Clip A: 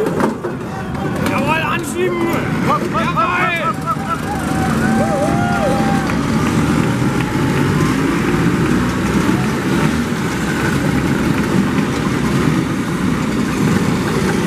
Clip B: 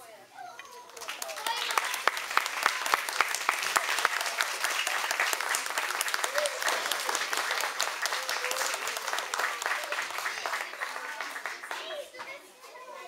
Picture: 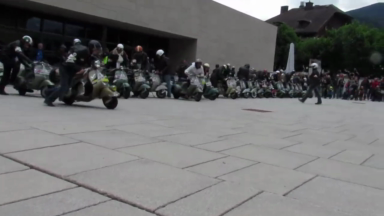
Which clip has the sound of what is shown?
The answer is A